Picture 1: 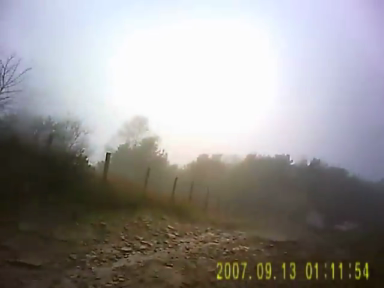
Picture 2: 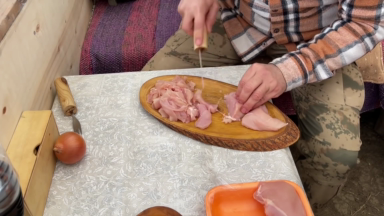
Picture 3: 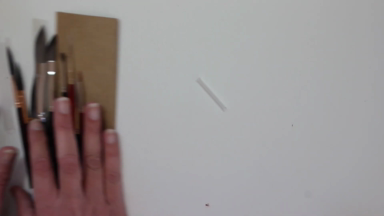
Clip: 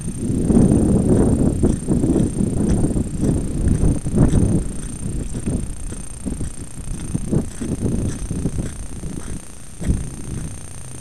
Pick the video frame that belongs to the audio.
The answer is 1